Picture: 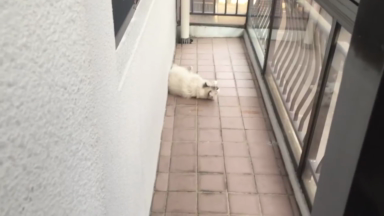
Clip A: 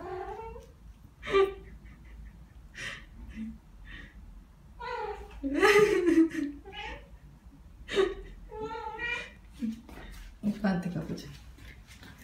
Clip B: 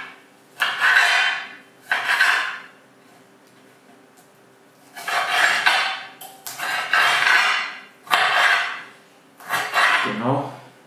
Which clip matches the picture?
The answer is A